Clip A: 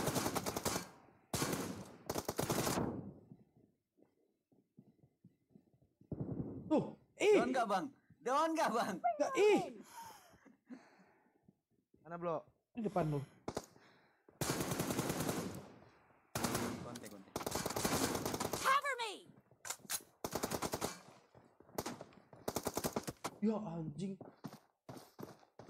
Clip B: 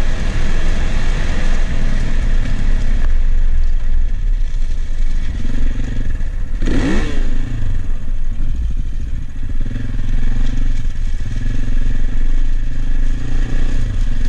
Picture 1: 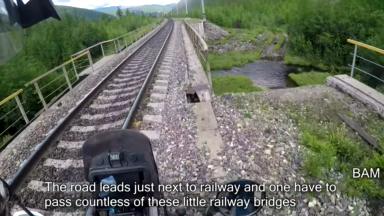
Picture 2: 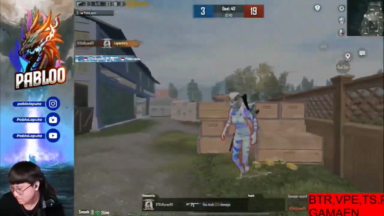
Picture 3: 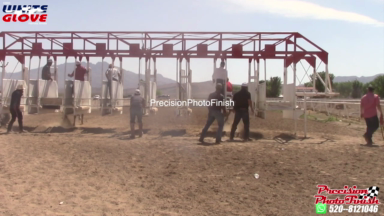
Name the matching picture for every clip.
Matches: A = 2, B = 1